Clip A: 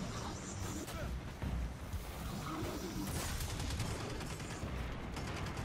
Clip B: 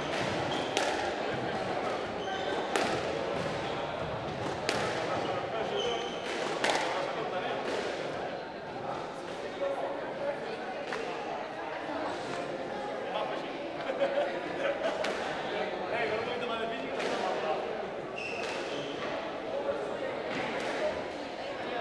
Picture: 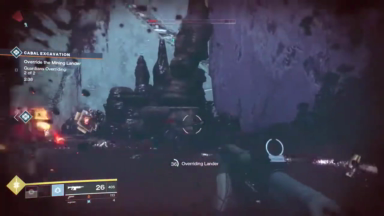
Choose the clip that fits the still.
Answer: A